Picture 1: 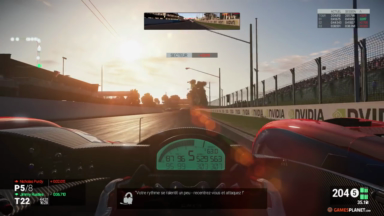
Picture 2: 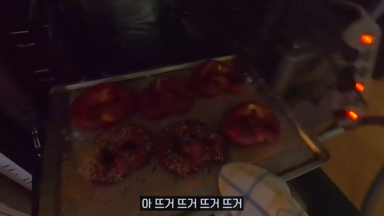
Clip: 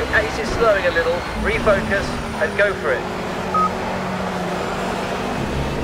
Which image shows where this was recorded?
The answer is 1